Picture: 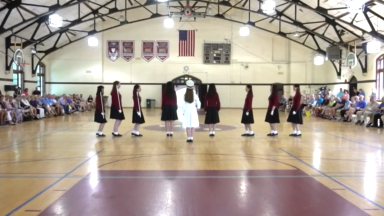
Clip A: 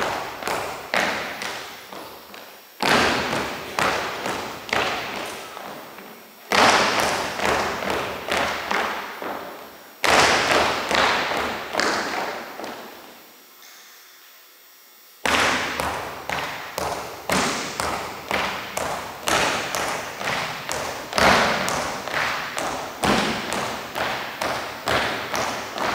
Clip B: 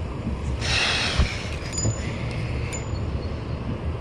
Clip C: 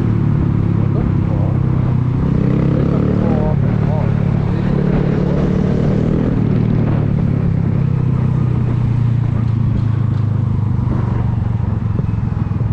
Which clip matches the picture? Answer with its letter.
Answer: A